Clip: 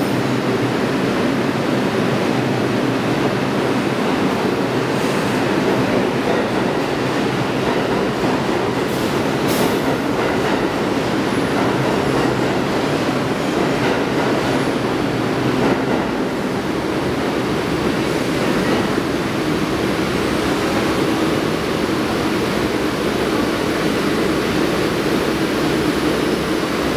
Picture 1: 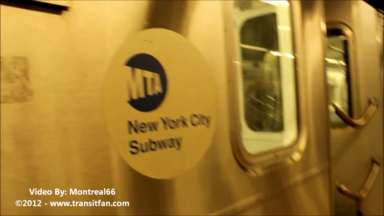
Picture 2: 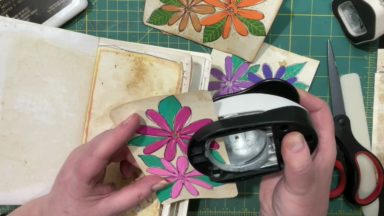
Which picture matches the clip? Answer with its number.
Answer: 1